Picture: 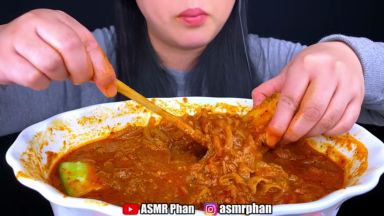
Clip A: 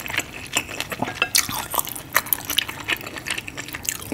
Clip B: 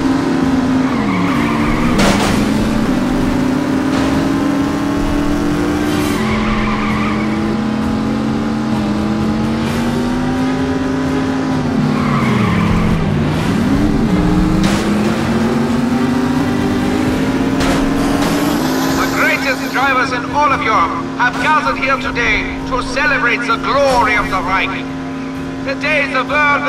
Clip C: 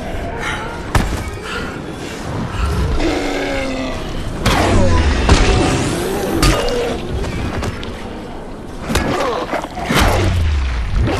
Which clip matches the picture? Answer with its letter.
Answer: A